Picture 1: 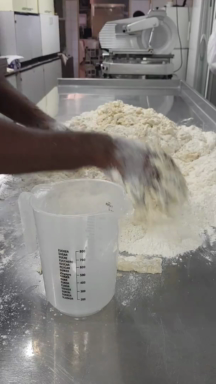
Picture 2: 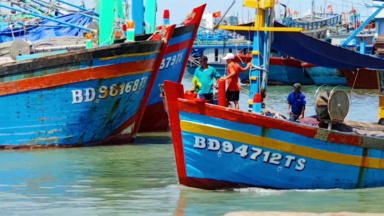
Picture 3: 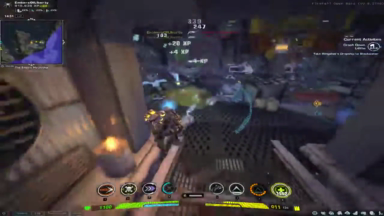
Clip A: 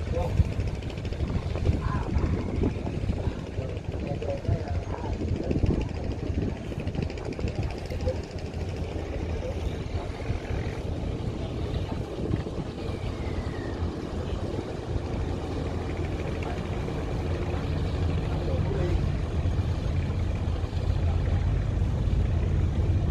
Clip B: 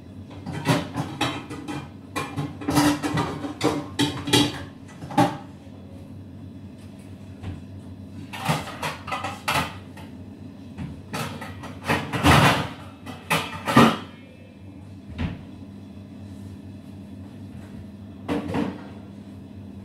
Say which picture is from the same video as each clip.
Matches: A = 2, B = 1